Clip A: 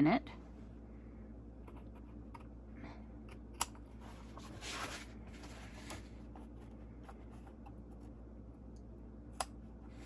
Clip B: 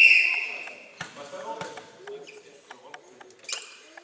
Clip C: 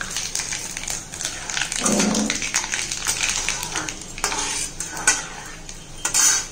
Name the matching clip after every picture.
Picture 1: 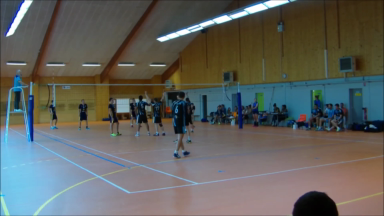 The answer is B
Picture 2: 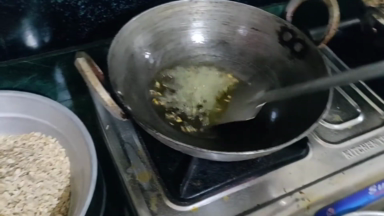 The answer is C